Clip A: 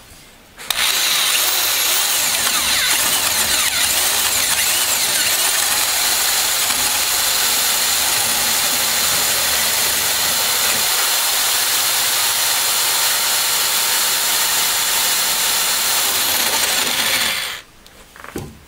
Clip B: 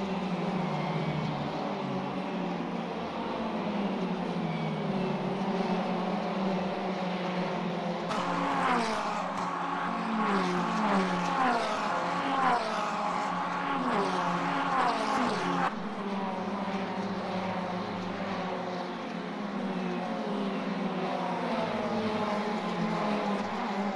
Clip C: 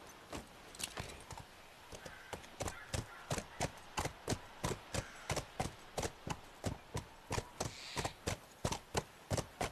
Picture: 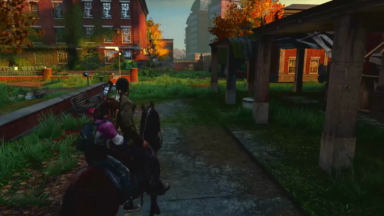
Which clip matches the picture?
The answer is C